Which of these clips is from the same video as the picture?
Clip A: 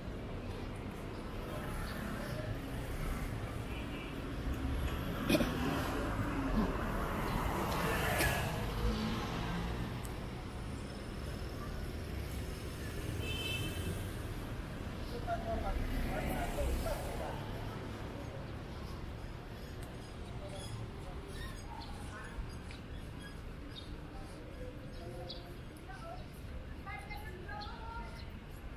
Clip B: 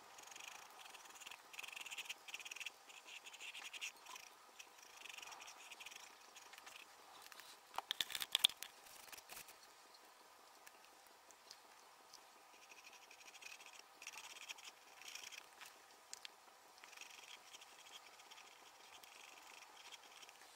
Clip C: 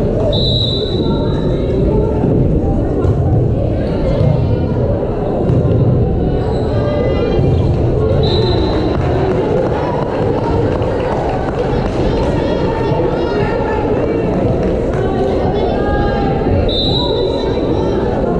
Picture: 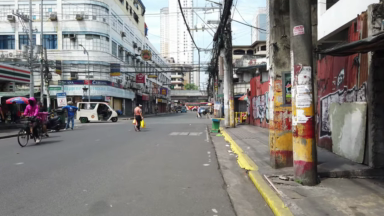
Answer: A